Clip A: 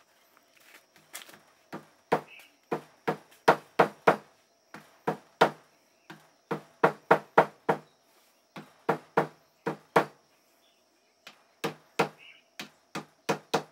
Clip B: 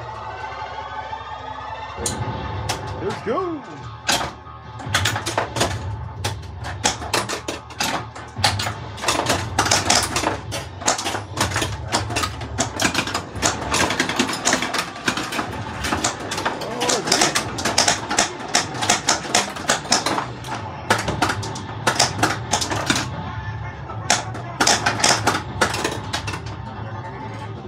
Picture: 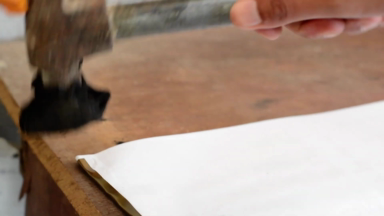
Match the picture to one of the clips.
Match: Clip A